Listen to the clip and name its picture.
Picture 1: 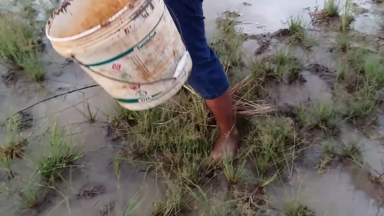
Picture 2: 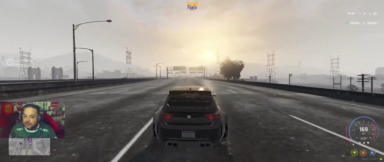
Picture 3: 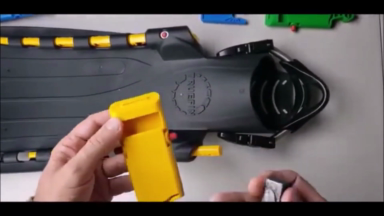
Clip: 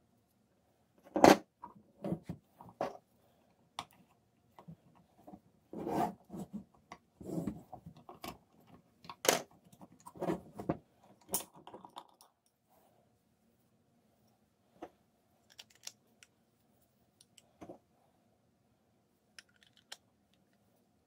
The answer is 3